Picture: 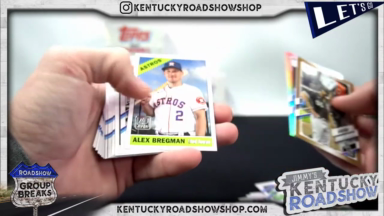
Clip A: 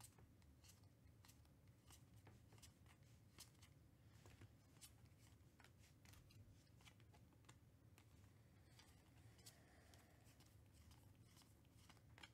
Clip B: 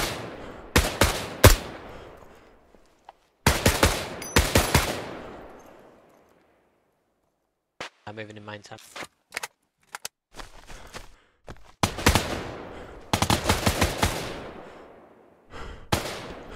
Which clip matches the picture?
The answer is A